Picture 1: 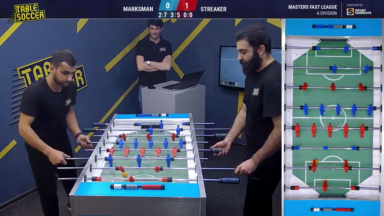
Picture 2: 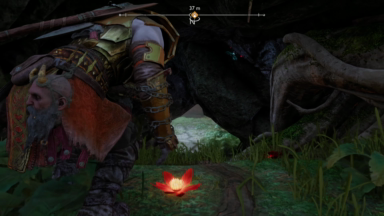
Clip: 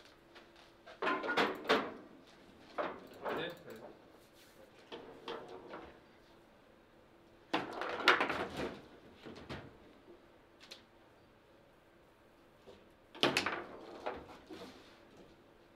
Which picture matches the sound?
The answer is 1